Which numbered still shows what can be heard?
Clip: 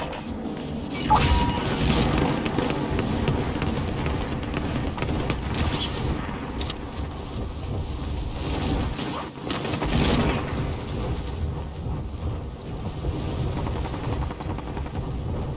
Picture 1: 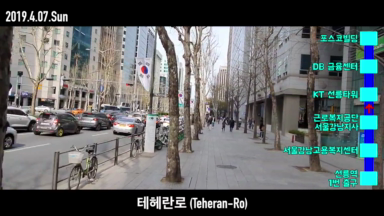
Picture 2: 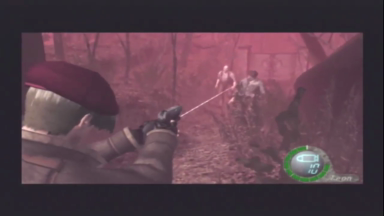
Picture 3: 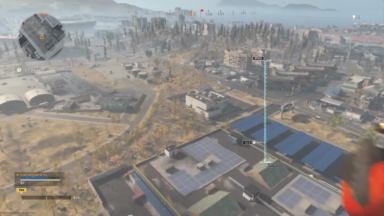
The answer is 3